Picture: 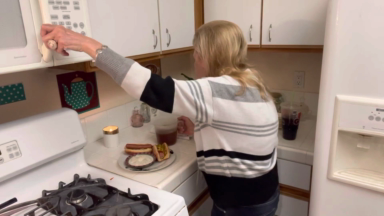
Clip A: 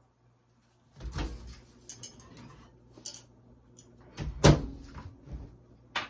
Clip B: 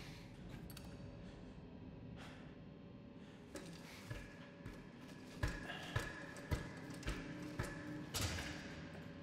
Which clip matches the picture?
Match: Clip A